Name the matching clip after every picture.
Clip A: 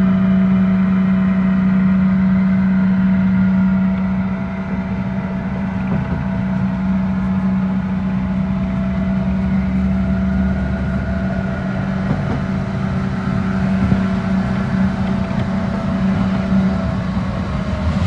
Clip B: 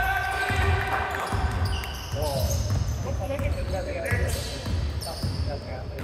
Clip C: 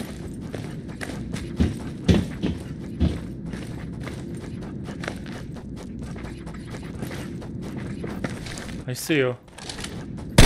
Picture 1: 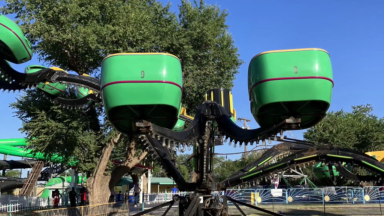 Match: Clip A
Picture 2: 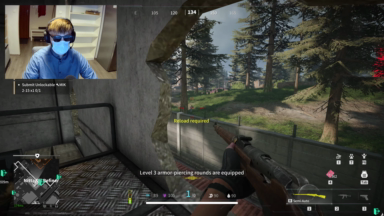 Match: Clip C